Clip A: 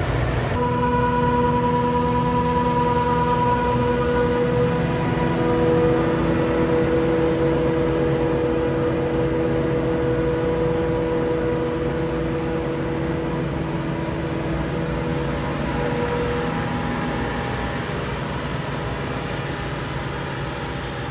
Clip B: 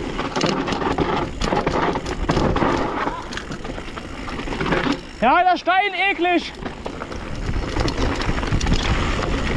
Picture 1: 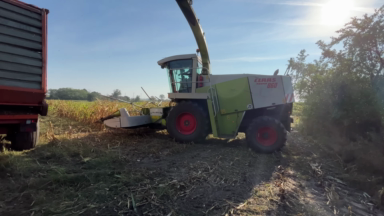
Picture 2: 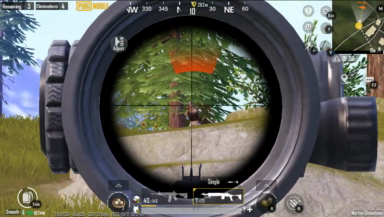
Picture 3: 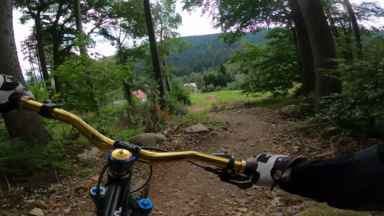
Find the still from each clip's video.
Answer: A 1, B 3